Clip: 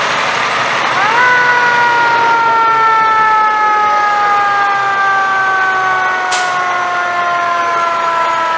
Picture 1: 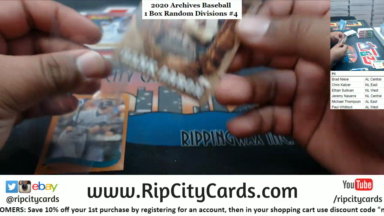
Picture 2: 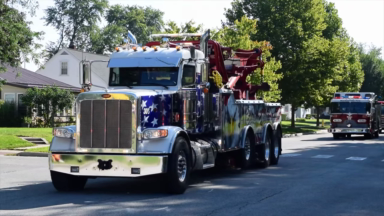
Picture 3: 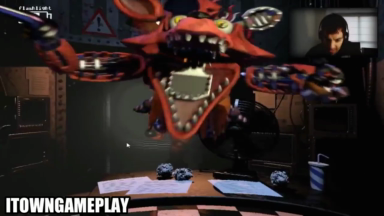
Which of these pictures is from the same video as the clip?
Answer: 2